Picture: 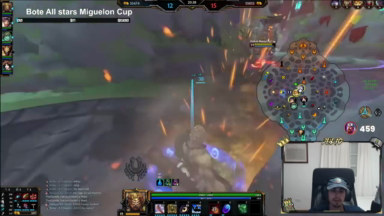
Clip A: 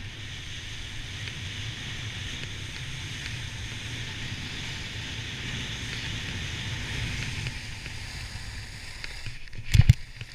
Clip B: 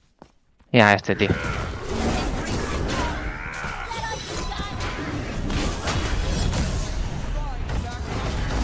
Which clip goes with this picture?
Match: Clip B